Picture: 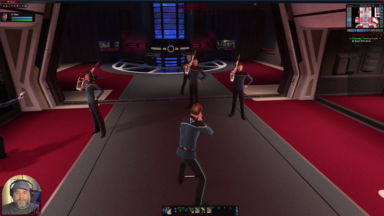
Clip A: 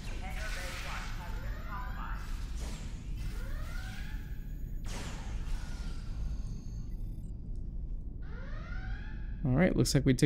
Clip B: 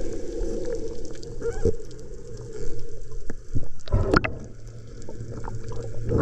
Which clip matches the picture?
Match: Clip A